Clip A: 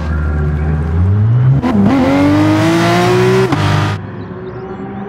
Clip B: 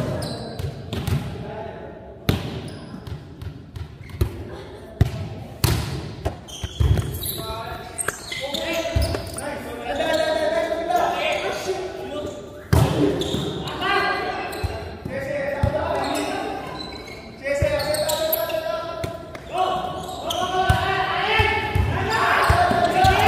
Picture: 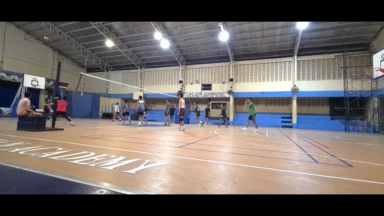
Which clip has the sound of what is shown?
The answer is B